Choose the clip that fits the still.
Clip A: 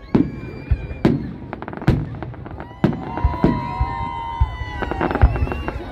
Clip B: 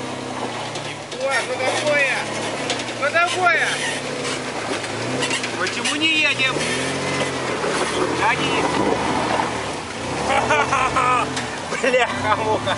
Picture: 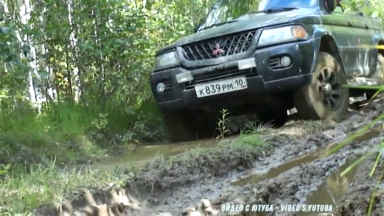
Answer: B